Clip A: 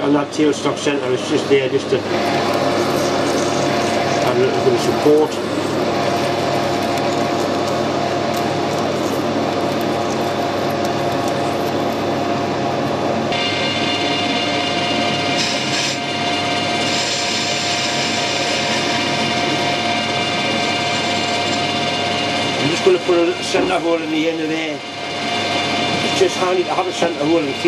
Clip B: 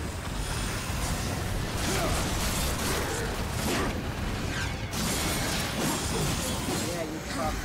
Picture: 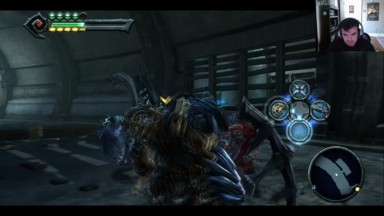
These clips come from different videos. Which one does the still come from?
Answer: B